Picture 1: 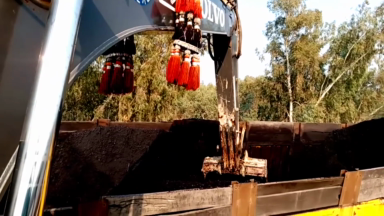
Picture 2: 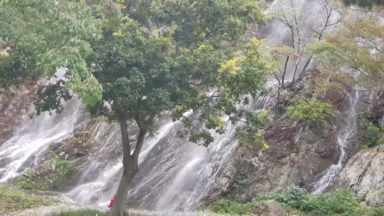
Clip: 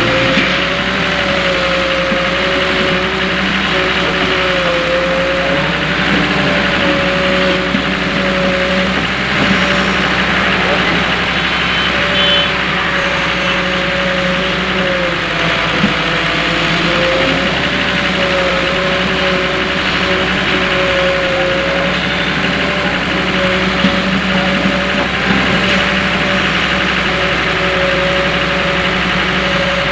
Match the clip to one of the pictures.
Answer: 1